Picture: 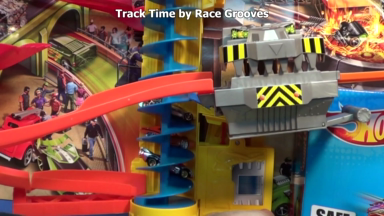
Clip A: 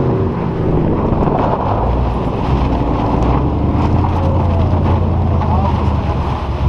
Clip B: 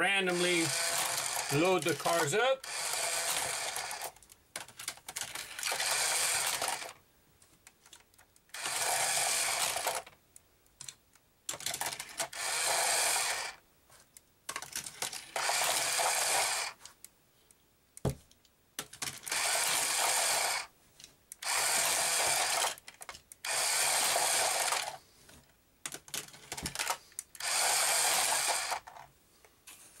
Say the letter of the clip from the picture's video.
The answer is B